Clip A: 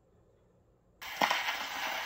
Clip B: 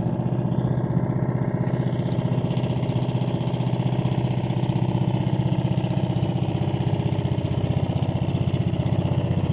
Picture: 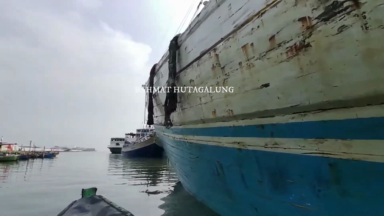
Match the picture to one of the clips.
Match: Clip B